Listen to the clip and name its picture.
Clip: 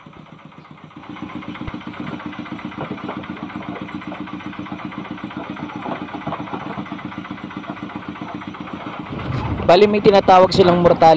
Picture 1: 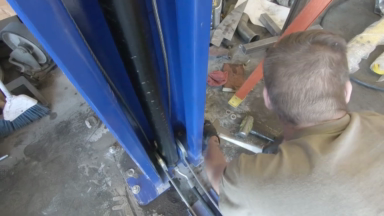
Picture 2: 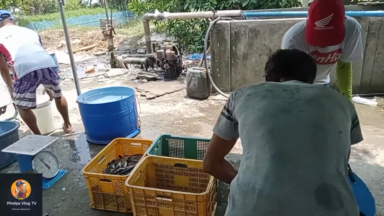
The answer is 2